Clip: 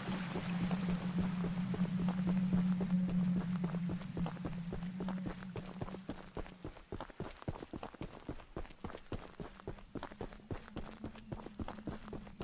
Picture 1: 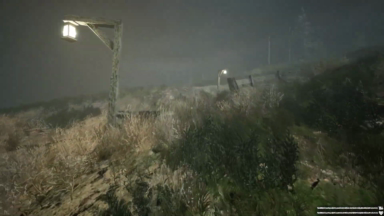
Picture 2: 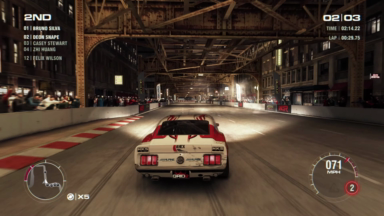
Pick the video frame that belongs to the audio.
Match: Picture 1